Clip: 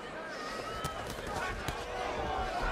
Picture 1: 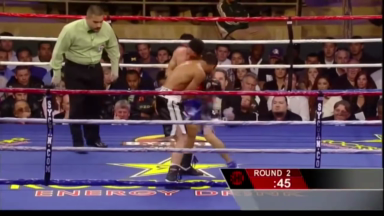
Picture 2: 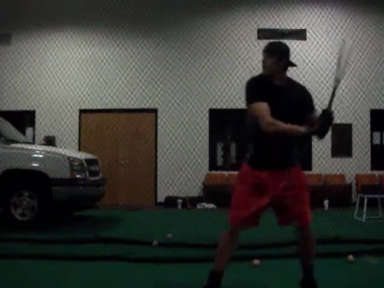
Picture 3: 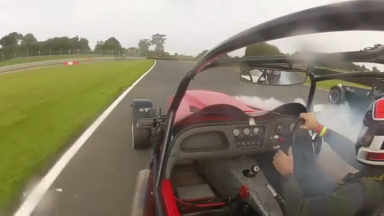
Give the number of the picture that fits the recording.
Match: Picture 1